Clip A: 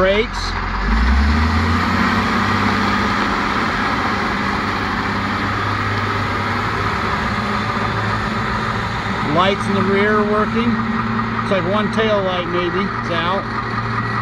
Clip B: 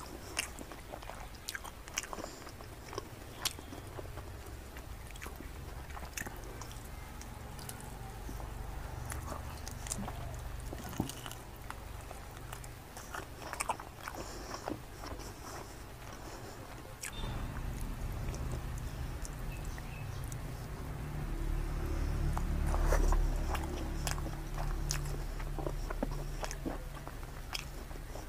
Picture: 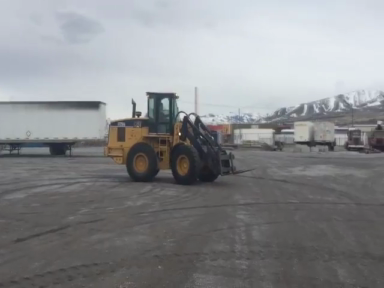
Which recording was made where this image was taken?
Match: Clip A